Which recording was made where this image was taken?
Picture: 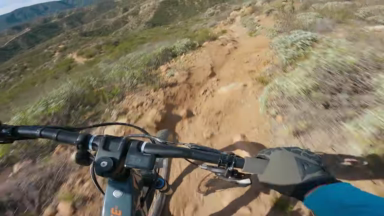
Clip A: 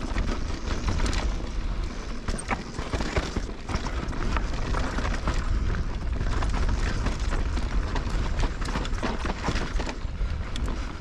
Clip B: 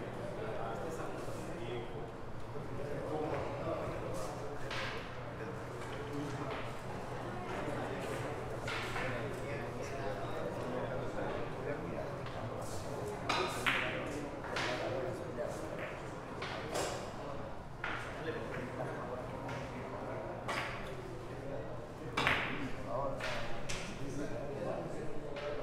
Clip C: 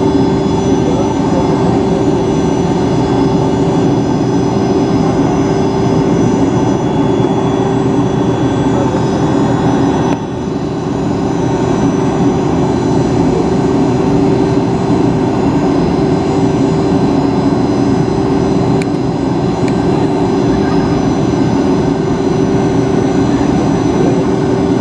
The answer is A